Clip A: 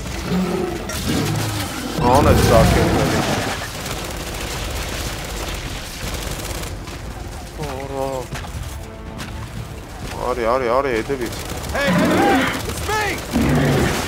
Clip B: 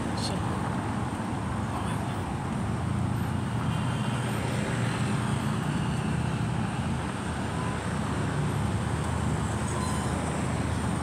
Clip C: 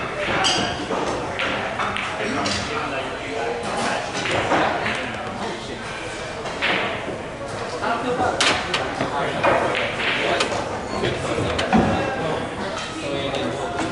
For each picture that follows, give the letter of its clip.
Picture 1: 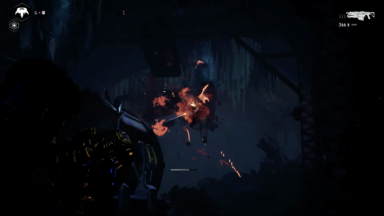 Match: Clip A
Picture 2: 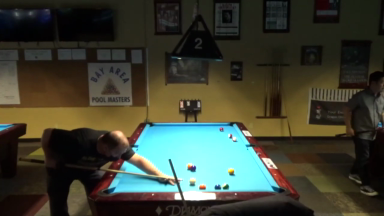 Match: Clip C